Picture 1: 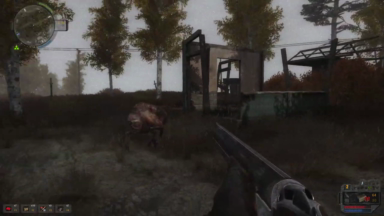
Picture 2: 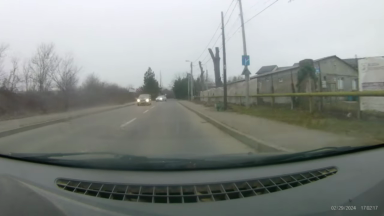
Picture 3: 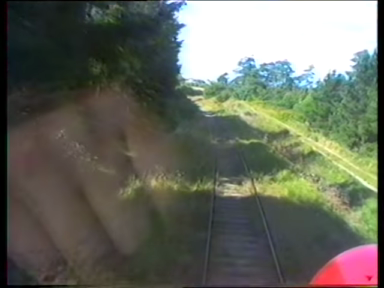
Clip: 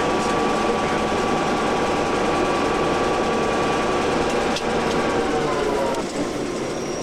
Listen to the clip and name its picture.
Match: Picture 3